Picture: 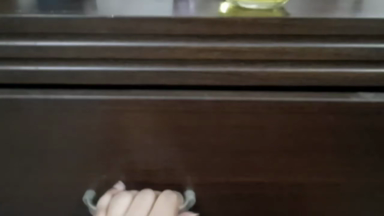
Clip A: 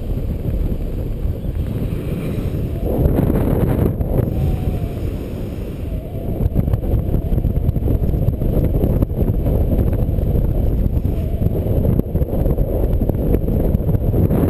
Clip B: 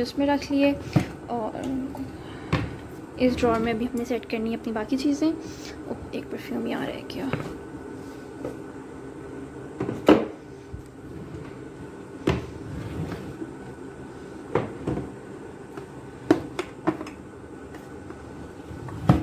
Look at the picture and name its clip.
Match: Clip B